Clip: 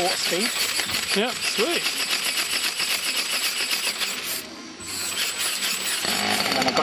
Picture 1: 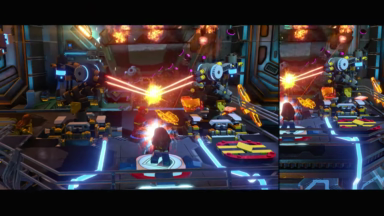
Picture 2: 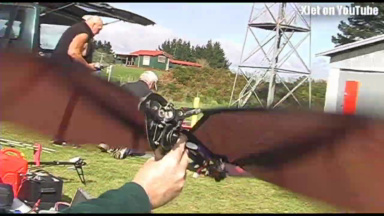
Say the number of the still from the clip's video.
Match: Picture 2